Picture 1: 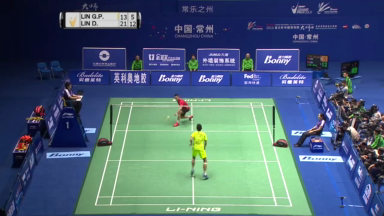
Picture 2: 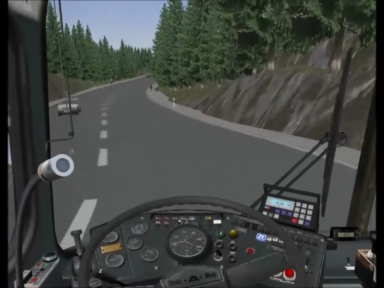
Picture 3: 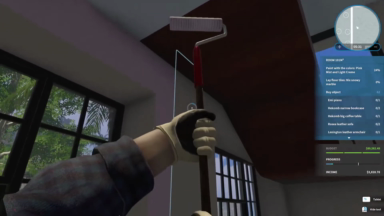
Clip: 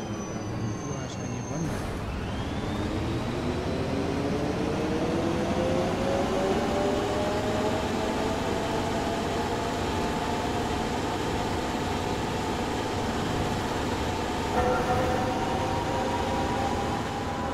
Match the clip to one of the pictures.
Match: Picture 2